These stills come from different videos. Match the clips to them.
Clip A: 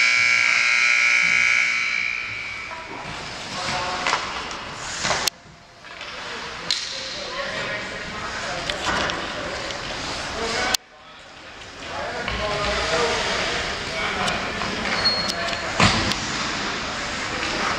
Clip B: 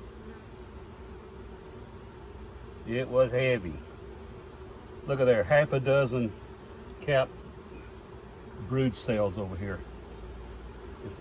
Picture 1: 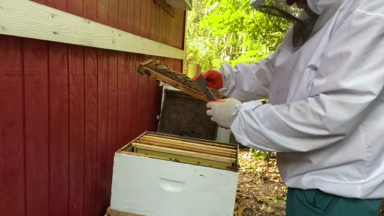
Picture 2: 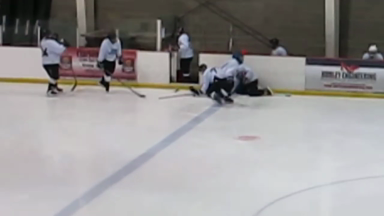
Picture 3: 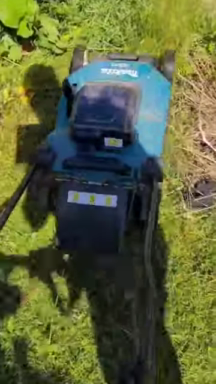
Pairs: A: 2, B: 1